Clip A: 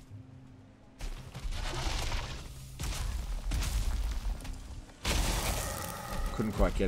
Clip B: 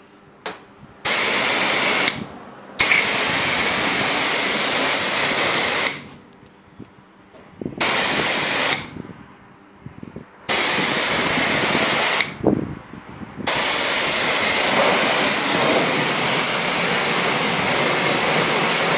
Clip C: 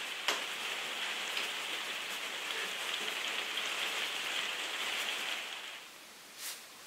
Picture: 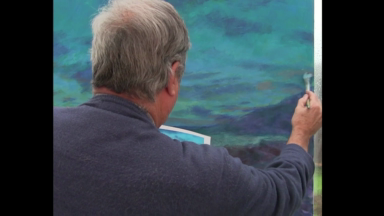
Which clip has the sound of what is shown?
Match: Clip C